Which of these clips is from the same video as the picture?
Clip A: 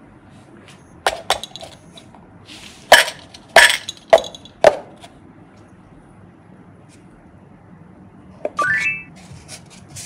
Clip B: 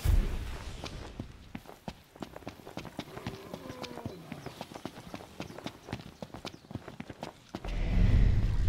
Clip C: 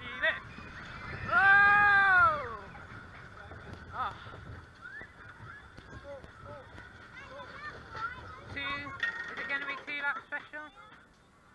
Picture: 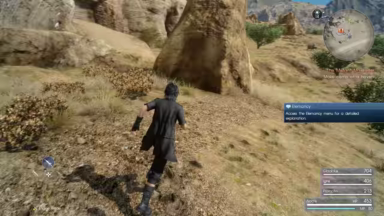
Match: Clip B